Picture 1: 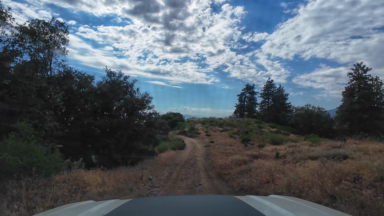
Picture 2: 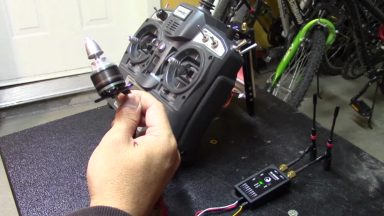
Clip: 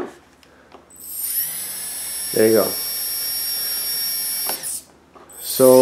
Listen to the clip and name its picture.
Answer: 2